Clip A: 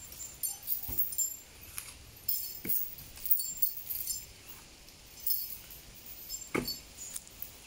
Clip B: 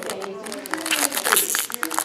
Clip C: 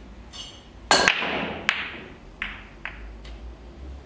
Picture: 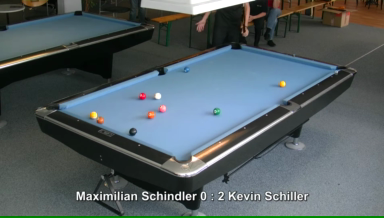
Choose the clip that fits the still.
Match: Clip C